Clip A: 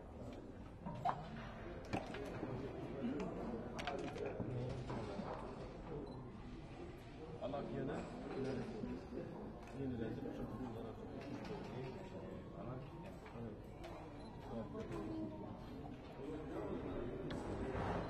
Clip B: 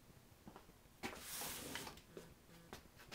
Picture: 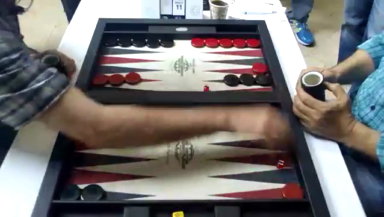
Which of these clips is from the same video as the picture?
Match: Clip A